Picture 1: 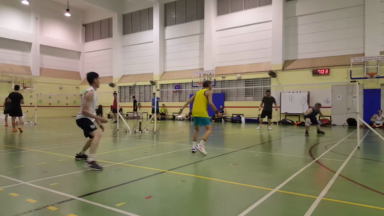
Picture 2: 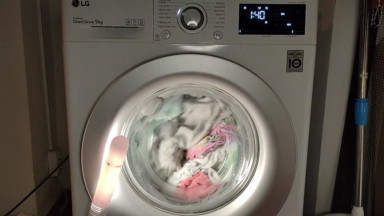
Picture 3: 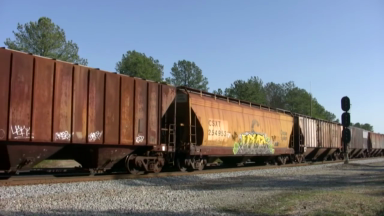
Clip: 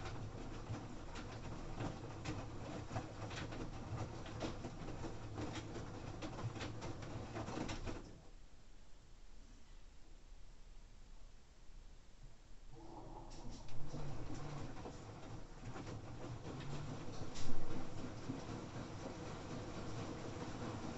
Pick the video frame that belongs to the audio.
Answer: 2